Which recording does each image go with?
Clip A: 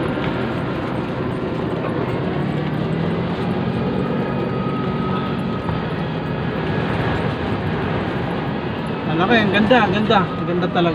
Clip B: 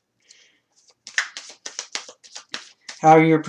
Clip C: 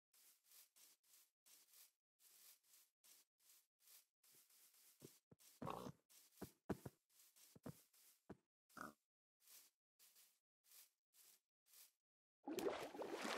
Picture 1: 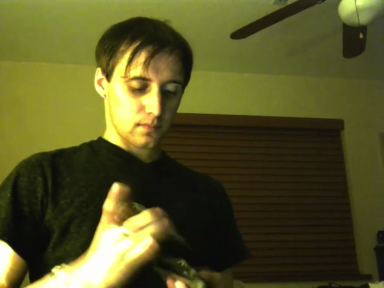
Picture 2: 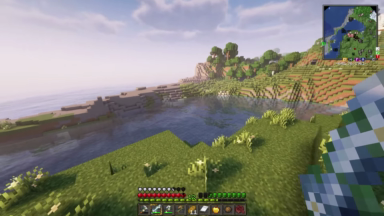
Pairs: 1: B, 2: C